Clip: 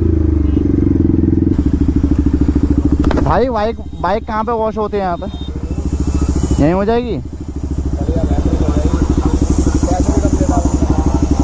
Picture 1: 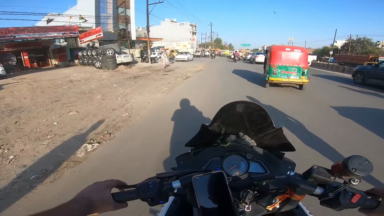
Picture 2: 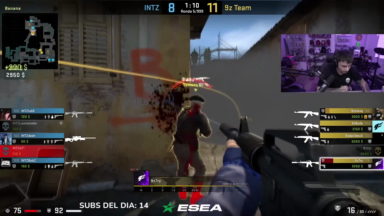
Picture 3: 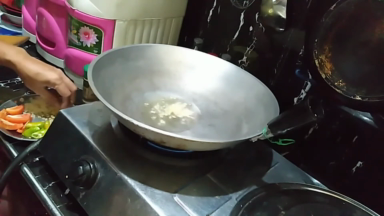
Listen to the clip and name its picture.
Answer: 1